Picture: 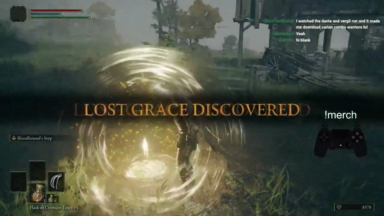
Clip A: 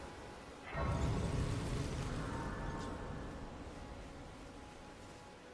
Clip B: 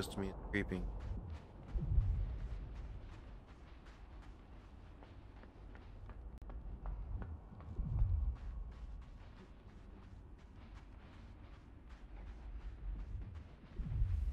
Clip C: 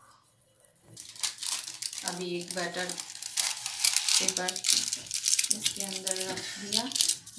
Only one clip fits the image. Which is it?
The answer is A